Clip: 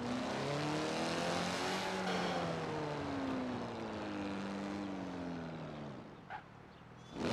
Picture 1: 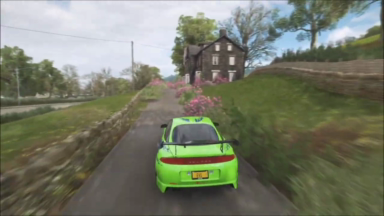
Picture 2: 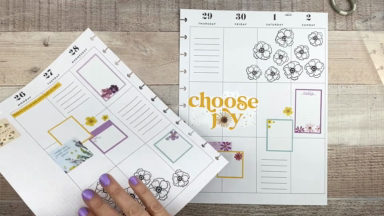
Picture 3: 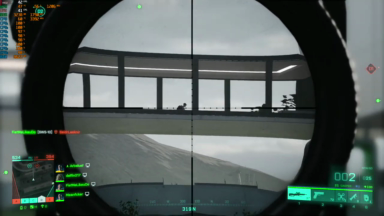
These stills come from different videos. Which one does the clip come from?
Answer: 1